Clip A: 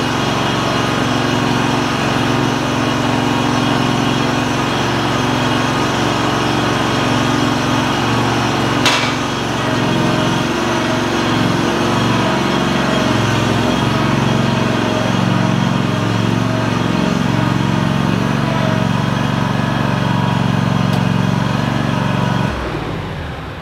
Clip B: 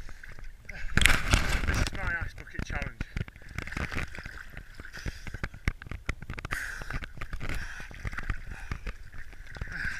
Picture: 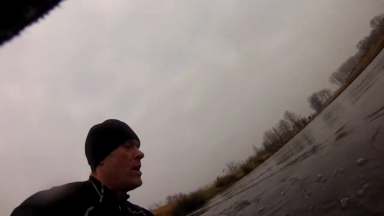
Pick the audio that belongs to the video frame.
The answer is B